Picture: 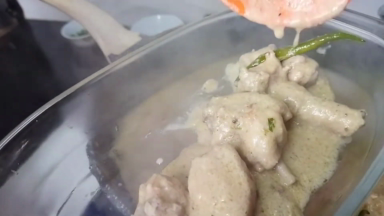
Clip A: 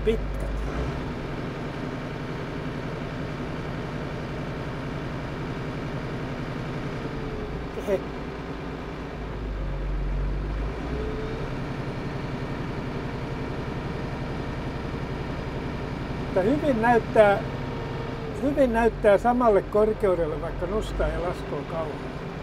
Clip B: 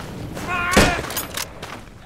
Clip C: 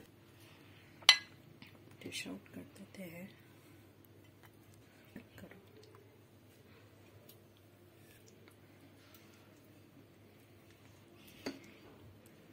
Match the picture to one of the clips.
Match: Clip C